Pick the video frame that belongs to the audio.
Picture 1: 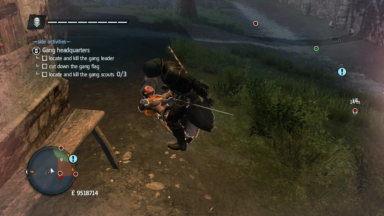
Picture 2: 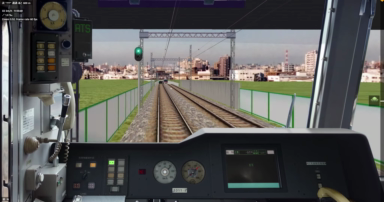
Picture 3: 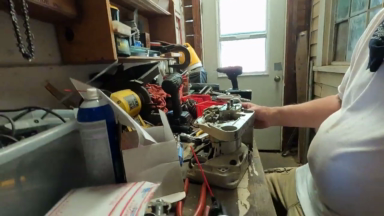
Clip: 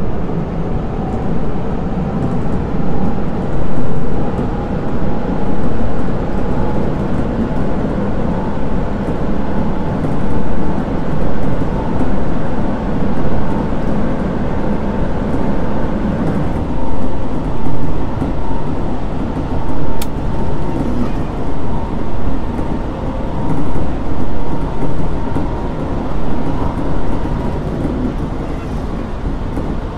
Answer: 2